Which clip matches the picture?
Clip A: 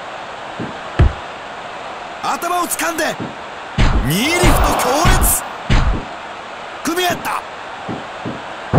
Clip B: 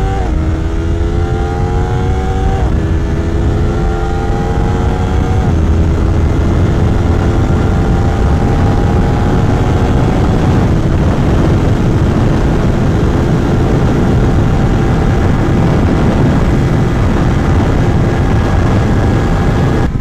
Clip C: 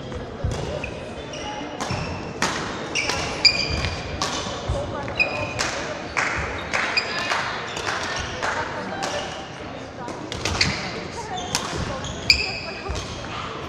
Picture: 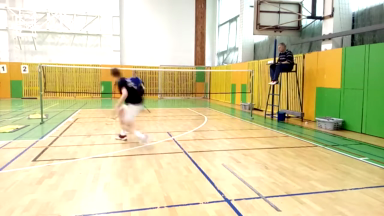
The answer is C